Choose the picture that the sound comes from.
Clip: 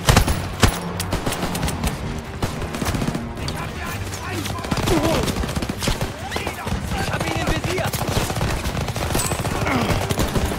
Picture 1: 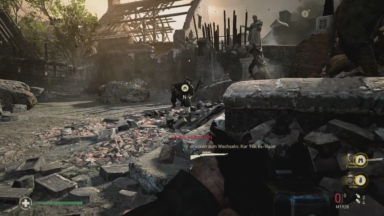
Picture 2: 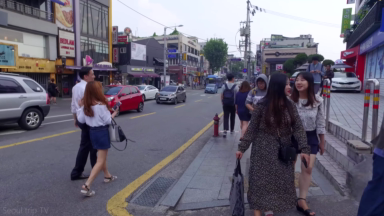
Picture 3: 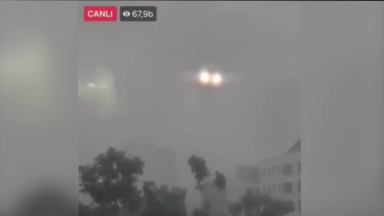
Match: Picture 1